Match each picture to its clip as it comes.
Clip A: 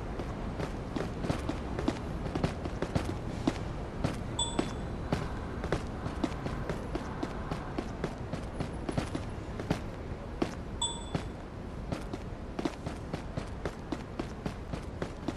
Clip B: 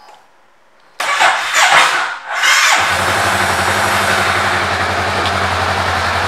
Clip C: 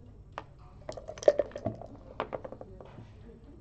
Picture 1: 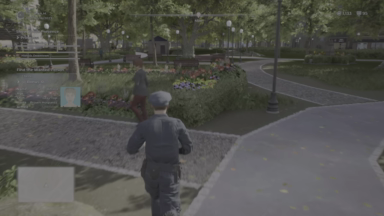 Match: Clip A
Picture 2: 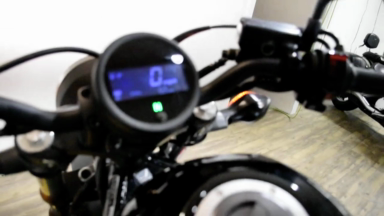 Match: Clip B